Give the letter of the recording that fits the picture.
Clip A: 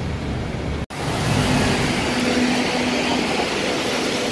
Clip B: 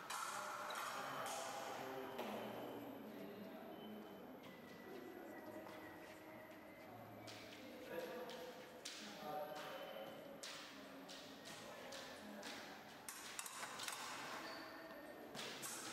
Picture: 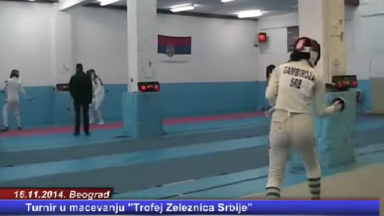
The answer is B